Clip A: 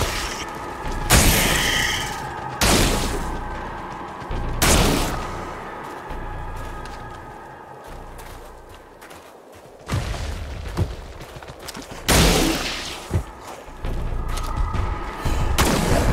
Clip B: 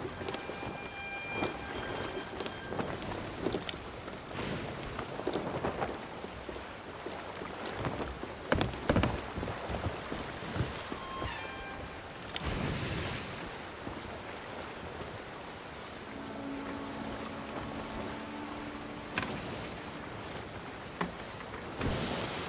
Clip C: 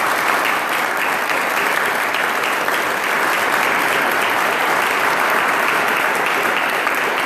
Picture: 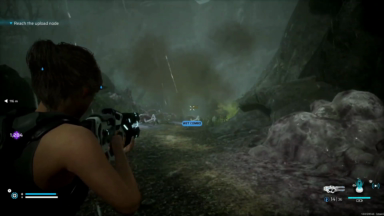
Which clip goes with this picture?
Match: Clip A